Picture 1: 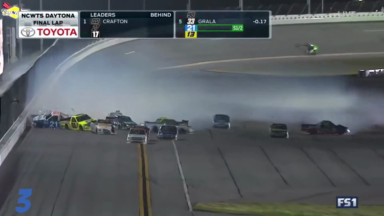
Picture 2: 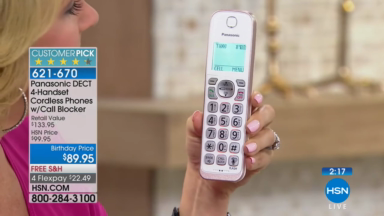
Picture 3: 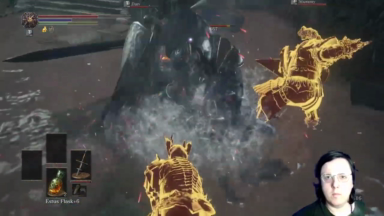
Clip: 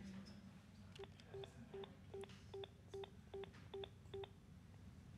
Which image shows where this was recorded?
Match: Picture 2